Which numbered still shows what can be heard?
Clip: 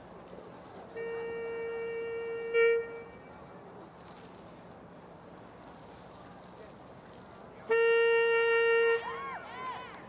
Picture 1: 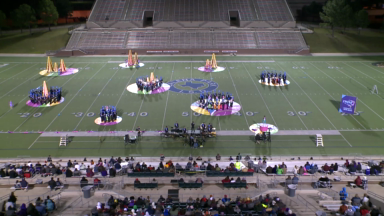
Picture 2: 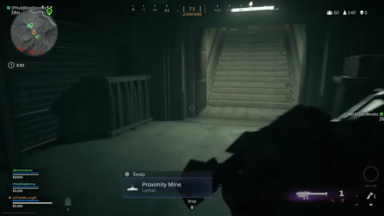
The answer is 1